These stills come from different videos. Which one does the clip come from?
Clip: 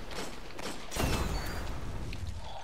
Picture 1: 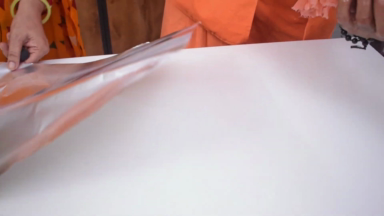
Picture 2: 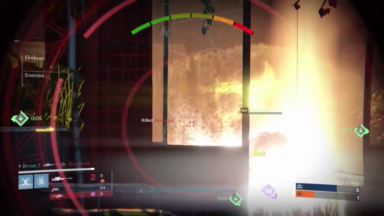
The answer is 2